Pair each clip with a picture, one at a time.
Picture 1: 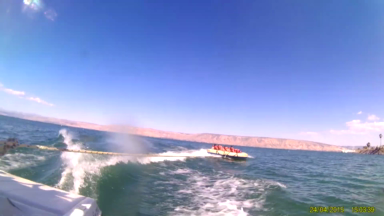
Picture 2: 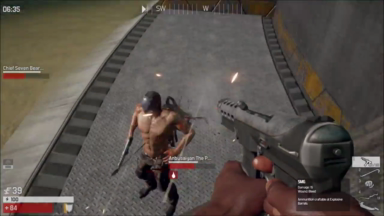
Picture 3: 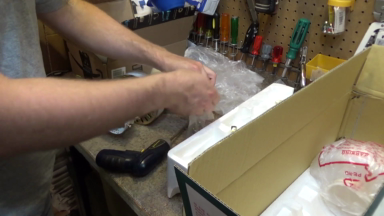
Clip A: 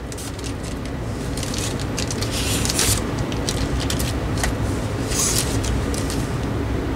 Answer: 3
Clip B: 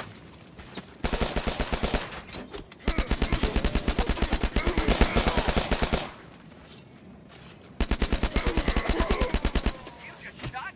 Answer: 2